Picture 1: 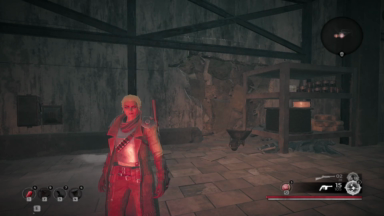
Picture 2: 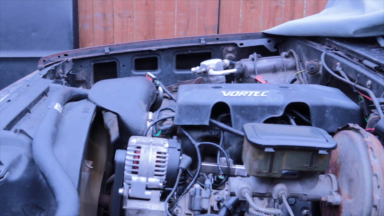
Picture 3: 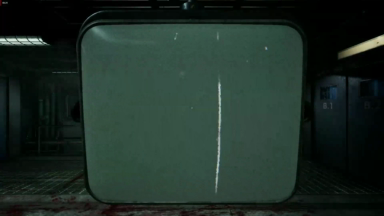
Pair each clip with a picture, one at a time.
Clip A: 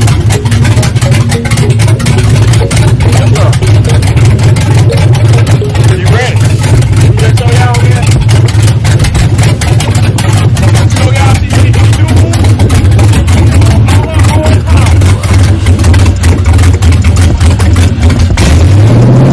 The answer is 2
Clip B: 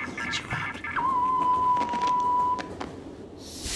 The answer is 3